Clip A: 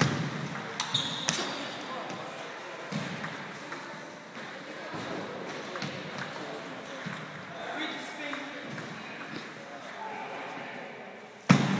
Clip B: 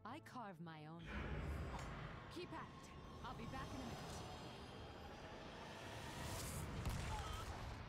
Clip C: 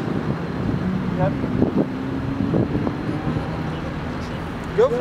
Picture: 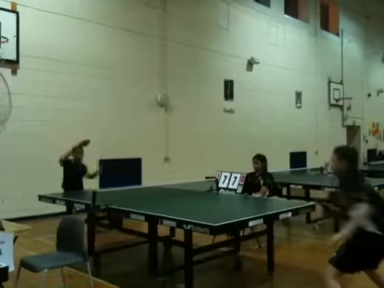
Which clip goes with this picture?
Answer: A